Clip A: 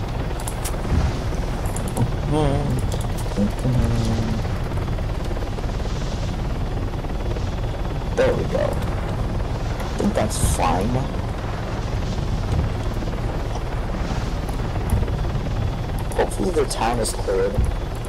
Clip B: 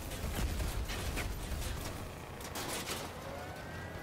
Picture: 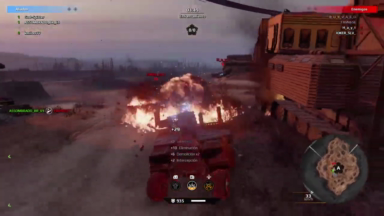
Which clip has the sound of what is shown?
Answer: B